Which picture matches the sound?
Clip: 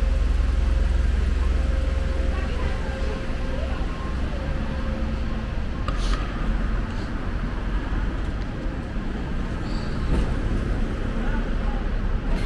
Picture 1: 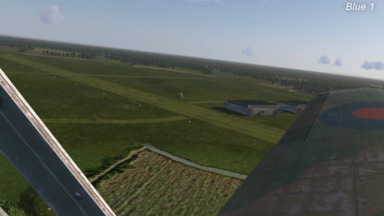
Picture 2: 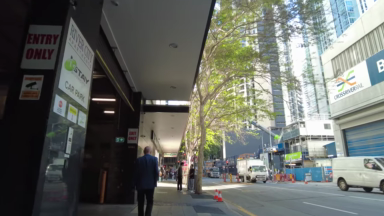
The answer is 2